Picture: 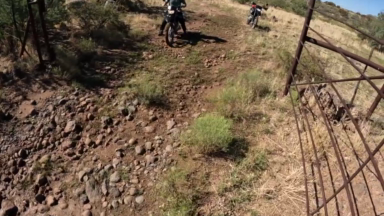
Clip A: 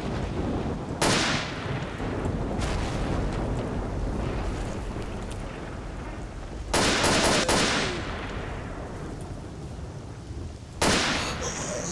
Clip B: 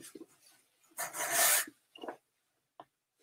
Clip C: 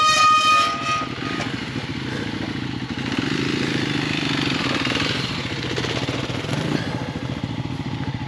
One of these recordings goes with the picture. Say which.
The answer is C